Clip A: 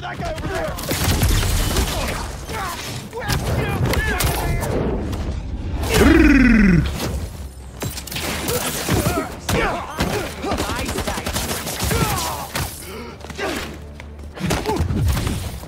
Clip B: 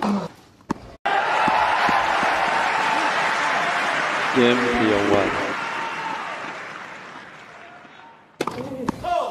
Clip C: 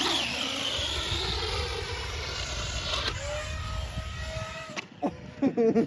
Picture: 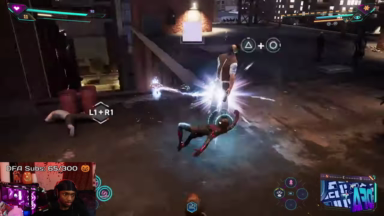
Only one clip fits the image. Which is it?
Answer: A